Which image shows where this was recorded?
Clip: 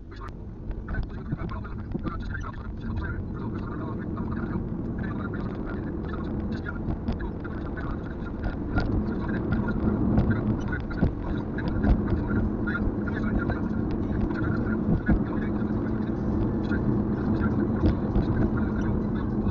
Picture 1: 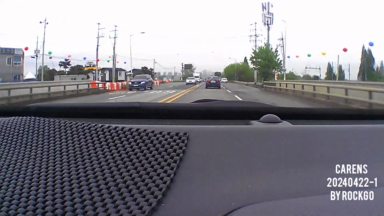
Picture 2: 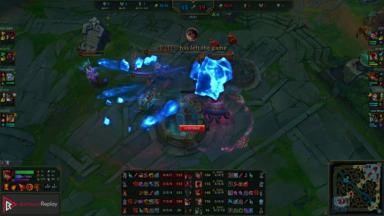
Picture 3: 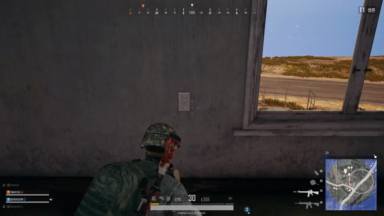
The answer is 1